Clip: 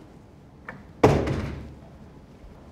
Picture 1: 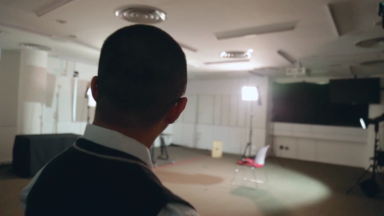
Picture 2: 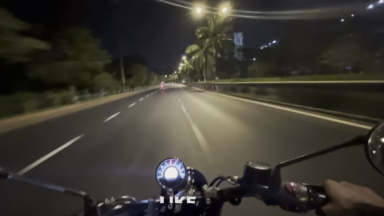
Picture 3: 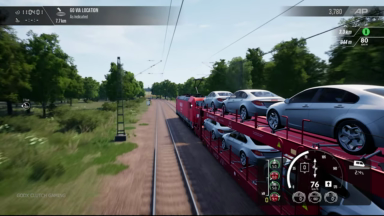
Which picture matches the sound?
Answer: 1